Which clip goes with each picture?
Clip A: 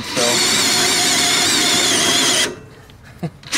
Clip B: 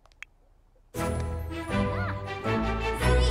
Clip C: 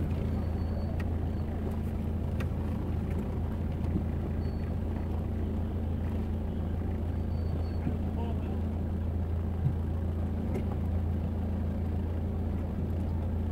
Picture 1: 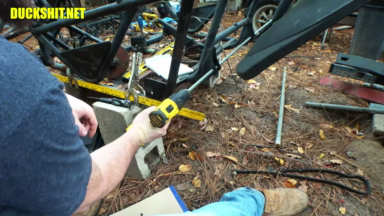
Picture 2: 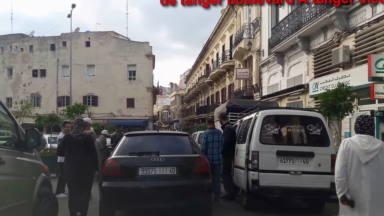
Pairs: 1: A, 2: C